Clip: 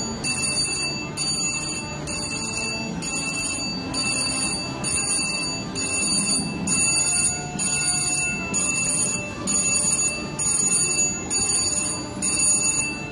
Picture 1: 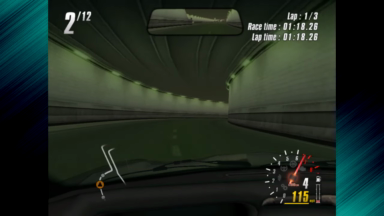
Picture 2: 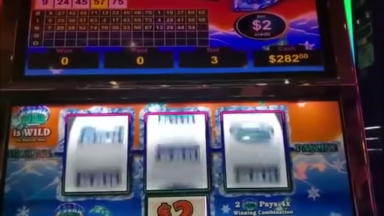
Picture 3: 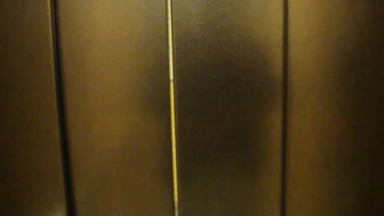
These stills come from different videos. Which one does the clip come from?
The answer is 2